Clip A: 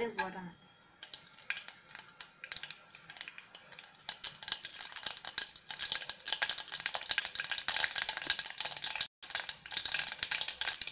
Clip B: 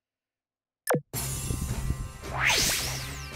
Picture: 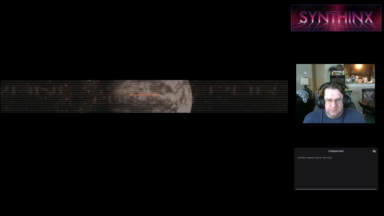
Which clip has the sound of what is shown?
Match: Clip B